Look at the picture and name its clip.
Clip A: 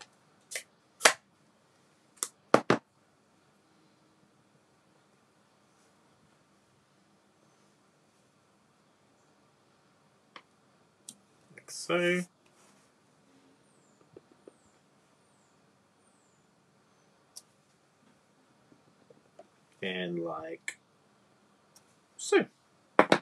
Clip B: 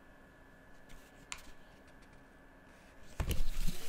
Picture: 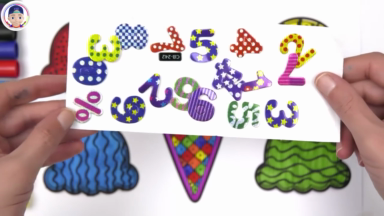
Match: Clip B